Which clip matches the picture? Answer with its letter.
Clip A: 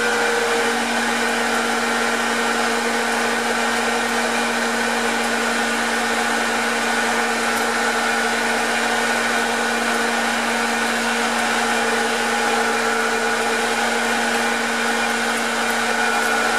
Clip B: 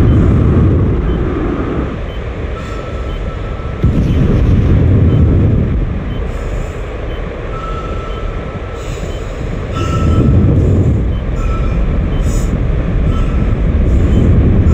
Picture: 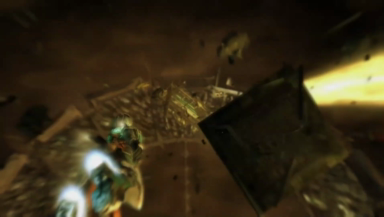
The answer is B